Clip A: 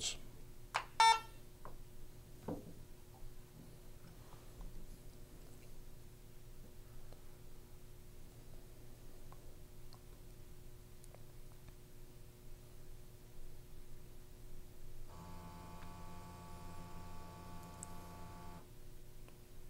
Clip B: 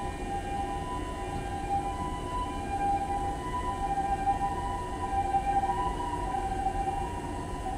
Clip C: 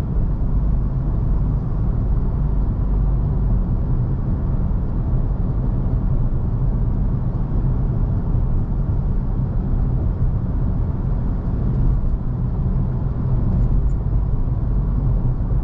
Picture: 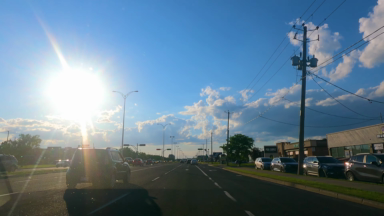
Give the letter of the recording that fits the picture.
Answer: C